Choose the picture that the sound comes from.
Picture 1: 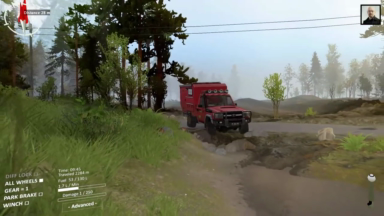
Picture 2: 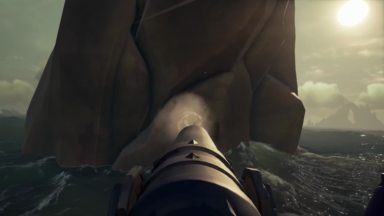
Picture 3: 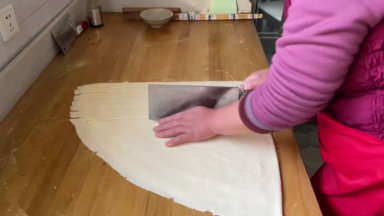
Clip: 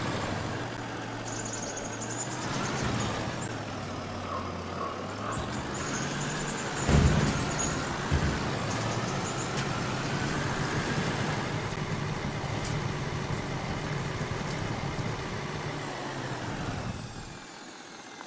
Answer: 1